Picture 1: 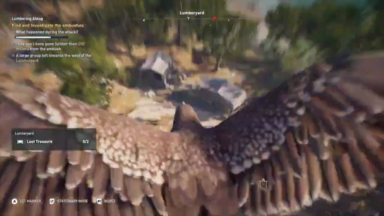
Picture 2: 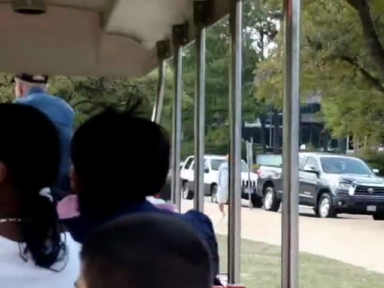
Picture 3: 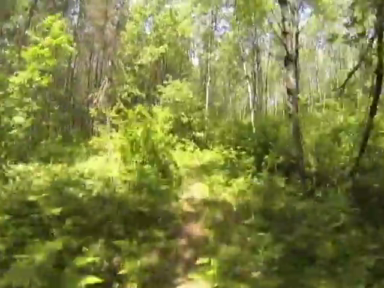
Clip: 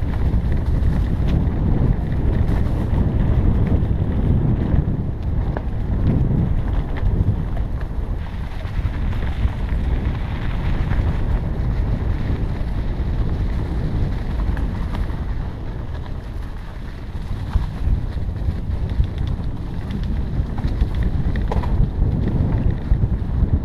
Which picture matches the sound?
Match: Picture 3